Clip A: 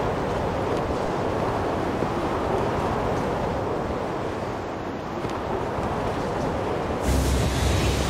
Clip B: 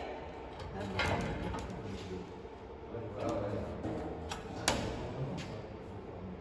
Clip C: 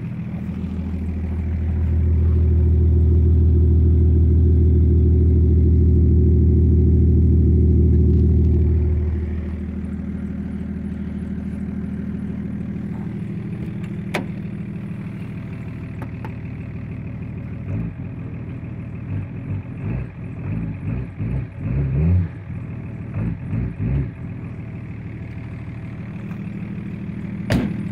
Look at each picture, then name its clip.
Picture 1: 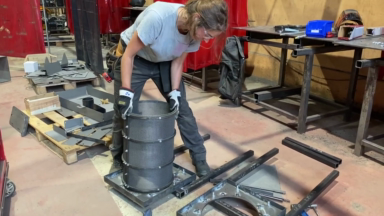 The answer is B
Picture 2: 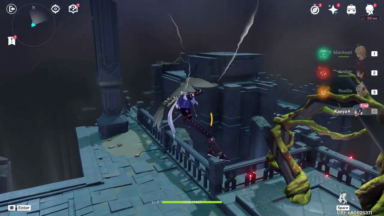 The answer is A